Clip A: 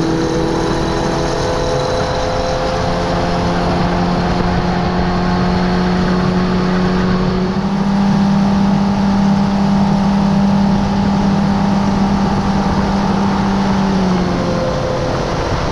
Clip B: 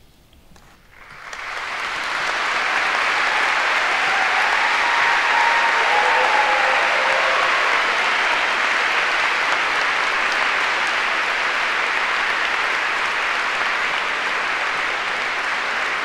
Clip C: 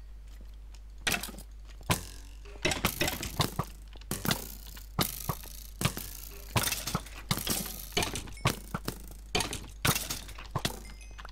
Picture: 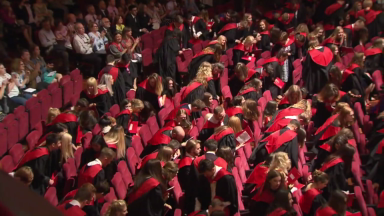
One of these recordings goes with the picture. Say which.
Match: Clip B